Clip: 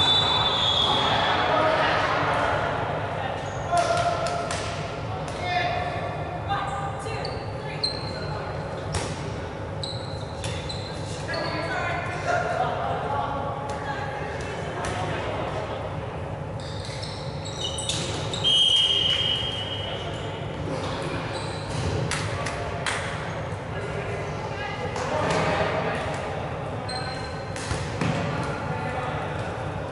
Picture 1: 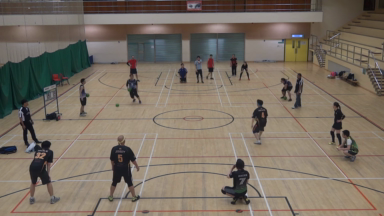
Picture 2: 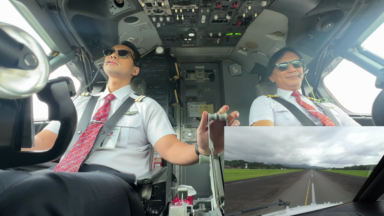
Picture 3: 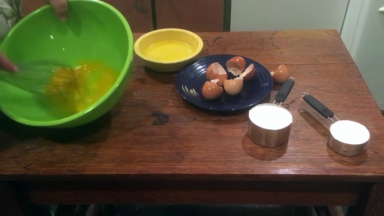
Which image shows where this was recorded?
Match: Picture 1